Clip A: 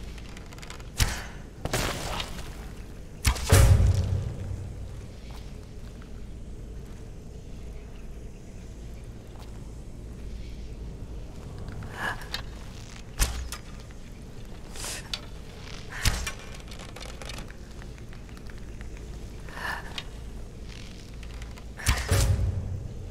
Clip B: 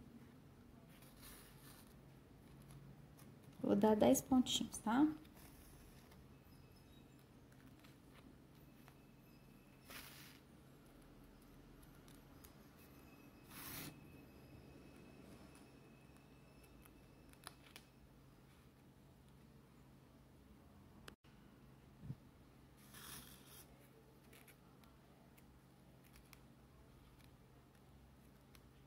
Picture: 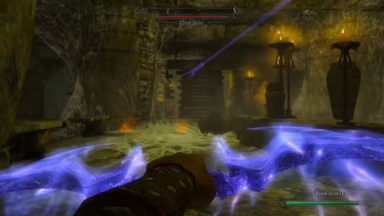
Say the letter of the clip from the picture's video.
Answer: A